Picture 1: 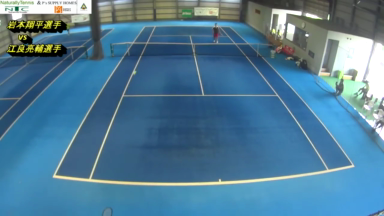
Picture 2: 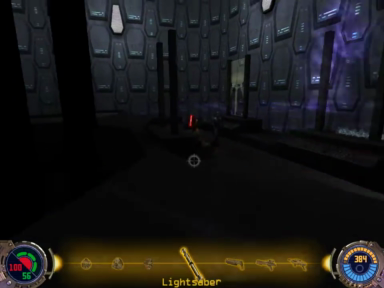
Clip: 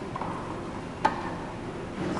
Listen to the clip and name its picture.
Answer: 1